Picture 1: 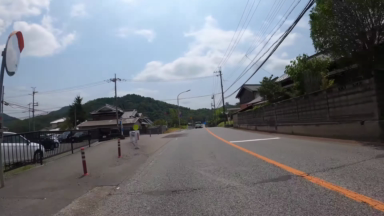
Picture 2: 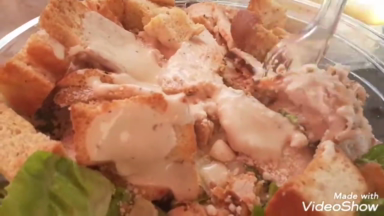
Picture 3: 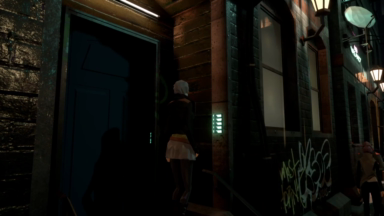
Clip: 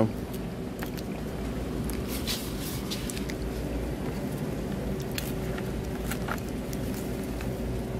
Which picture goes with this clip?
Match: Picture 2